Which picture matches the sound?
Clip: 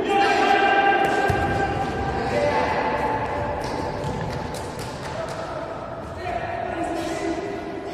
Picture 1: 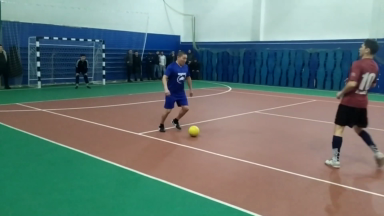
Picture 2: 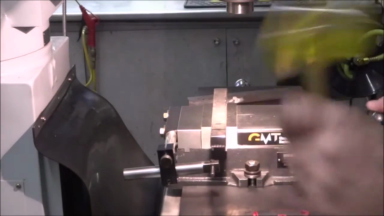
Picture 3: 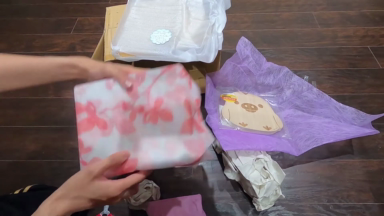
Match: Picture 1